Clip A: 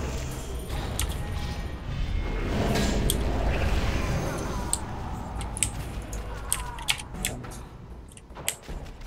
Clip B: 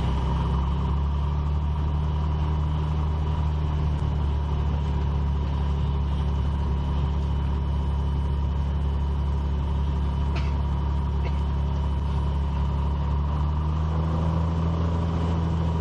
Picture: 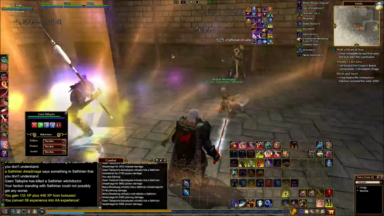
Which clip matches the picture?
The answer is A